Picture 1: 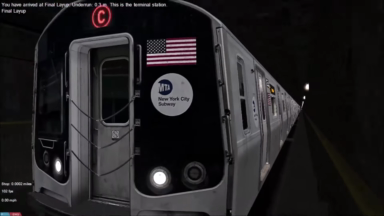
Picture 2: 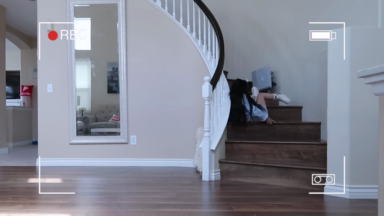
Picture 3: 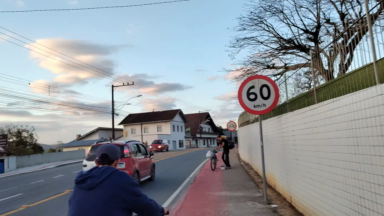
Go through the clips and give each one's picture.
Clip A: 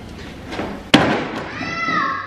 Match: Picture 2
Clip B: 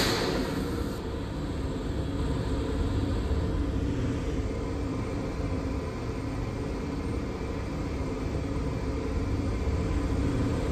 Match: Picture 1